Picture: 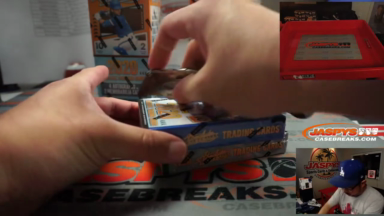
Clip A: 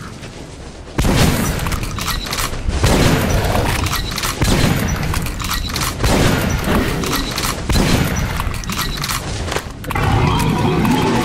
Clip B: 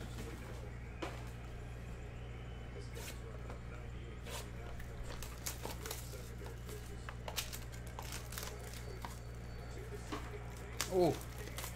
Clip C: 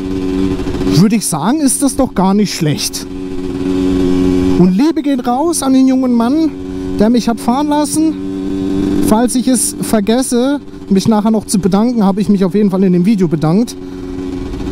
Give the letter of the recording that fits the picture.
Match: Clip B